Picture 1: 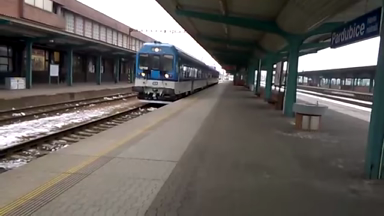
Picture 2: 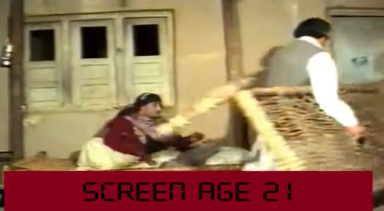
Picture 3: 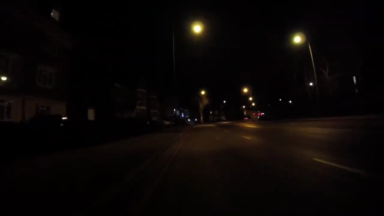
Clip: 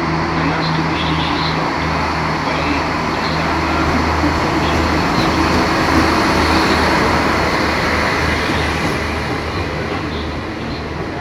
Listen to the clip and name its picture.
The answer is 1